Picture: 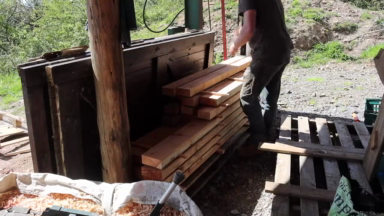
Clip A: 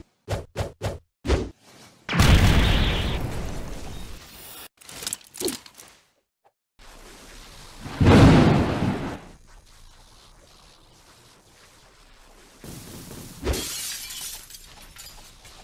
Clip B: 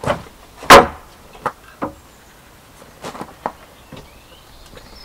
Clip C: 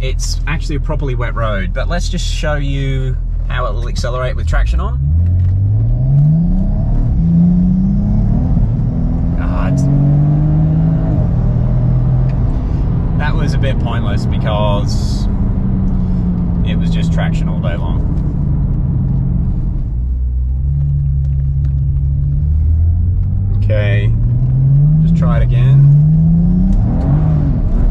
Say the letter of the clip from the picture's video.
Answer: B